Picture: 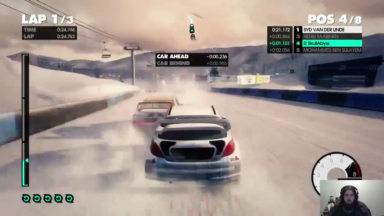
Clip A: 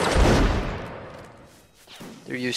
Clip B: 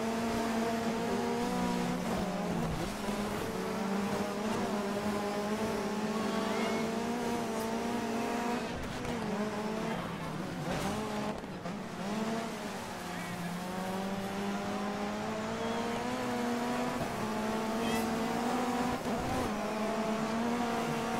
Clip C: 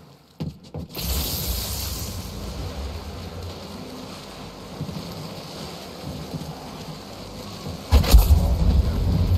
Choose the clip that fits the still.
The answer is B